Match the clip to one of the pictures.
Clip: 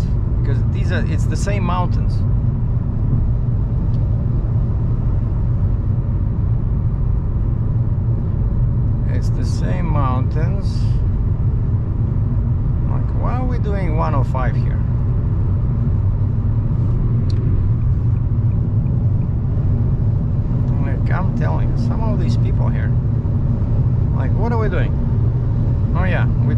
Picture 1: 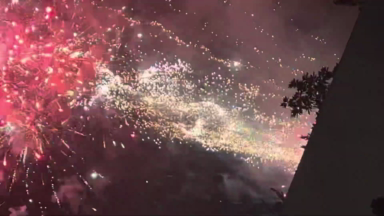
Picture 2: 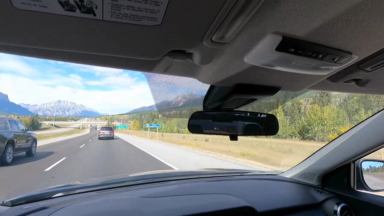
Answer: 2